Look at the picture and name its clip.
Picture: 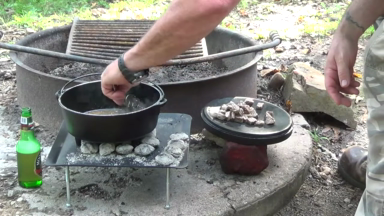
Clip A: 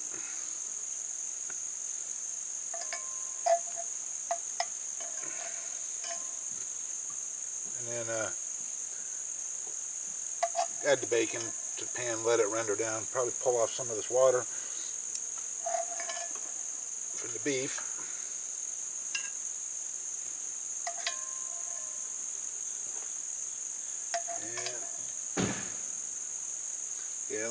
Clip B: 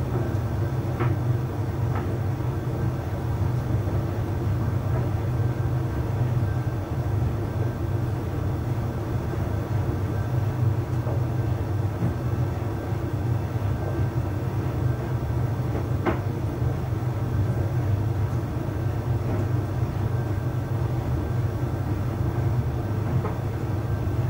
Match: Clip A